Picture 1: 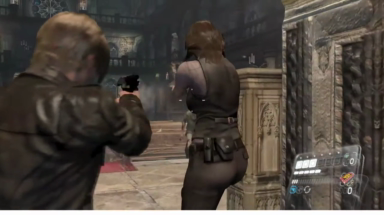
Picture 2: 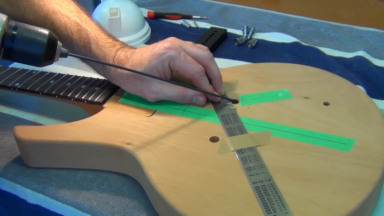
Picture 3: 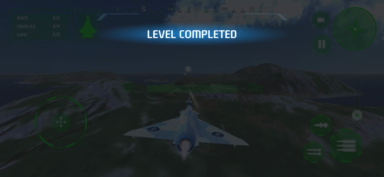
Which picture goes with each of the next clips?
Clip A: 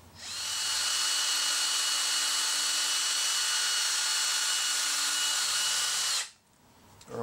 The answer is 2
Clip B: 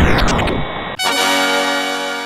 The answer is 3